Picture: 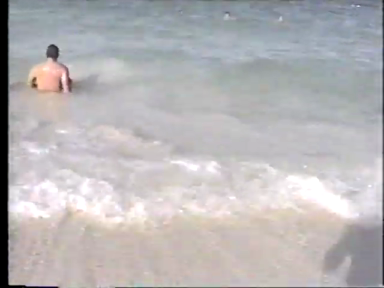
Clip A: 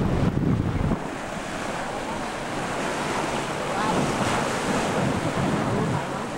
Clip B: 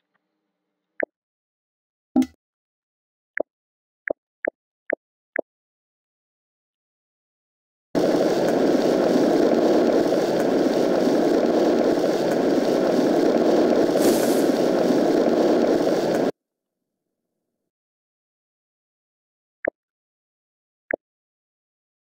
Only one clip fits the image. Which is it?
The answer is A